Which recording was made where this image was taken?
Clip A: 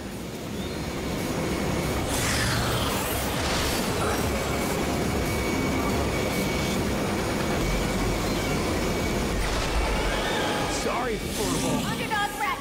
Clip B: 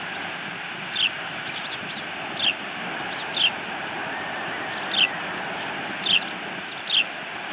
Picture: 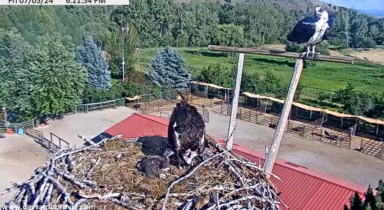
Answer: B